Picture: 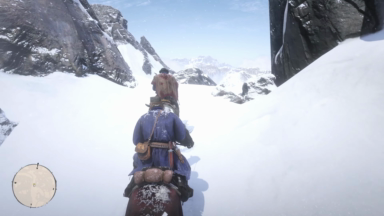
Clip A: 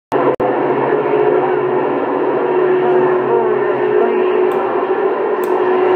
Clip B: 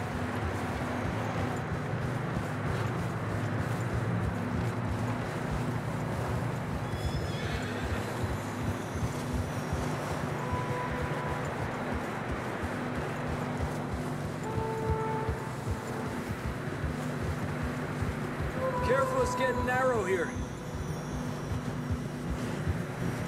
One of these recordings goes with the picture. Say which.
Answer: B